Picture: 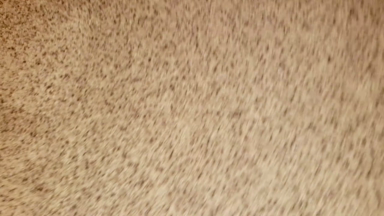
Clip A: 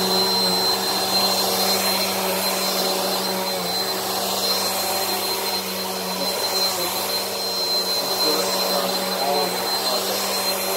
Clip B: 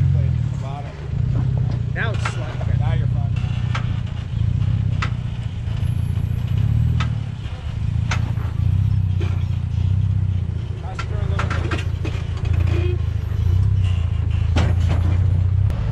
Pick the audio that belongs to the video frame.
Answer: A